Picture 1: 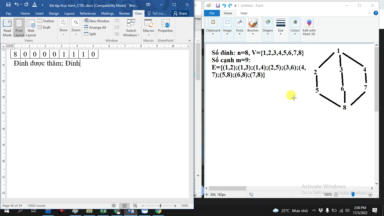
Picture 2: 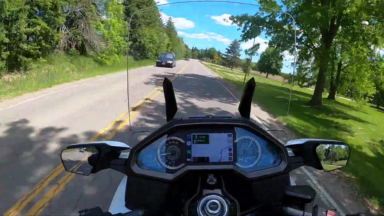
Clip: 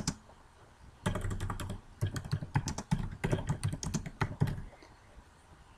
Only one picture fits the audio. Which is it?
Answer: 1